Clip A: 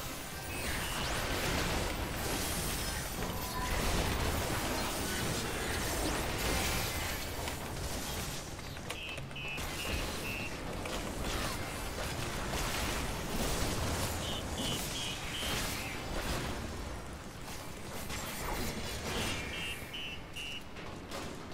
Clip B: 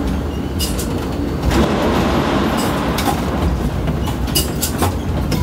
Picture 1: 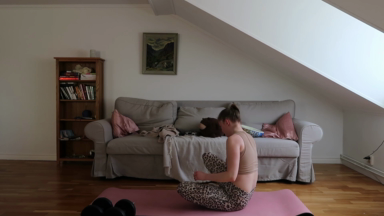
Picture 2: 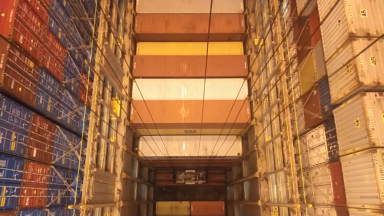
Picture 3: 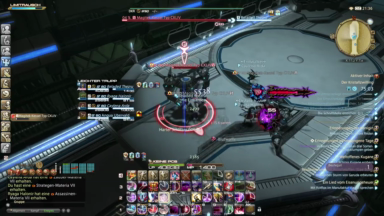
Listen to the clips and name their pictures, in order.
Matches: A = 3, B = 2